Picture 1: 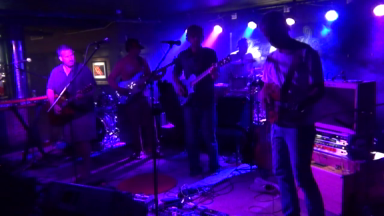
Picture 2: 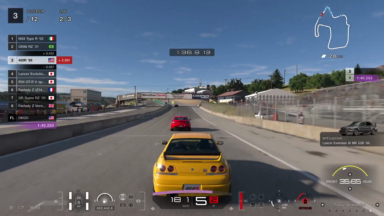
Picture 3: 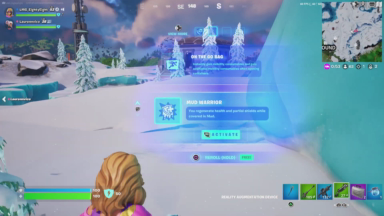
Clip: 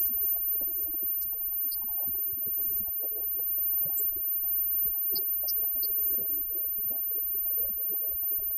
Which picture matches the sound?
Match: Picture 1